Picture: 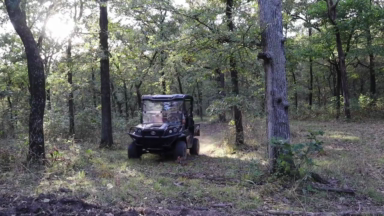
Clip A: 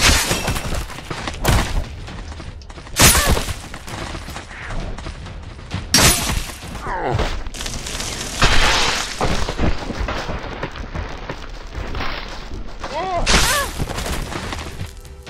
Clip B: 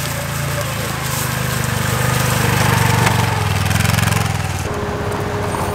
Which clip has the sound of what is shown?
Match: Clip B